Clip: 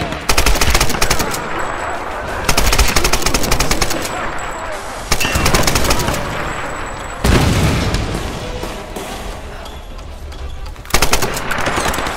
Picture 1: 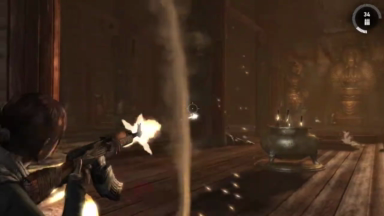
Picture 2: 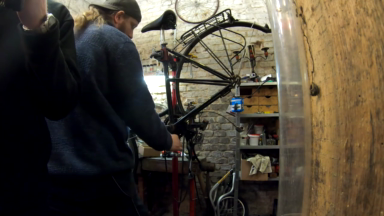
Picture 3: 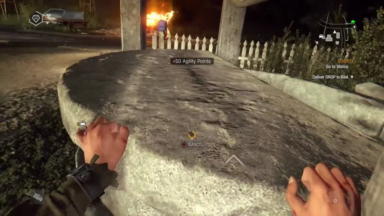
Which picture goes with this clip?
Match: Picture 1